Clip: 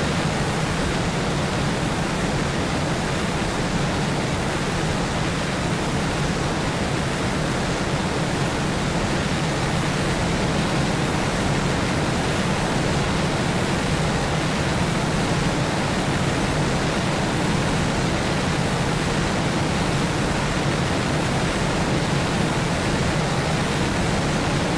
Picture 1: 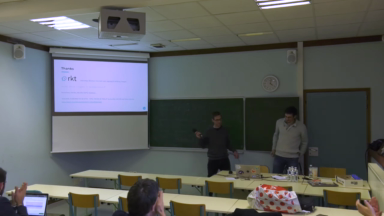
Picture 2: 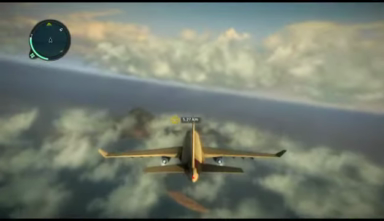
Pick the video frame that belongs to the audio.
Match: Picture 2